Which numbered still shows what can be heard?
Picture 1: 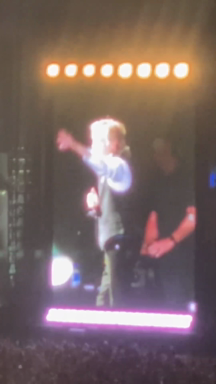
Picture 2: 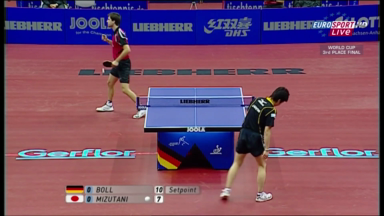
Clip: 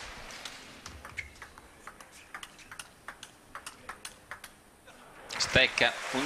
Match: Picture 2